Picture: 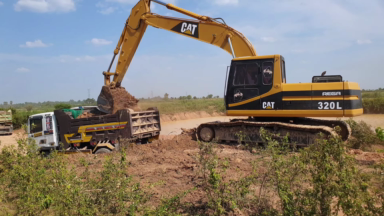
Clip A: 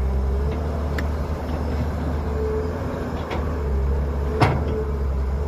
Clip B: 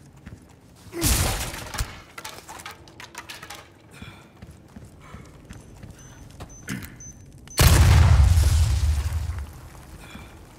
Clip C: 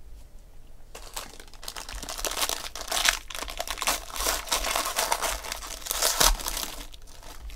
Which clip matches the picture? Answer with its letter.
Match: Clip A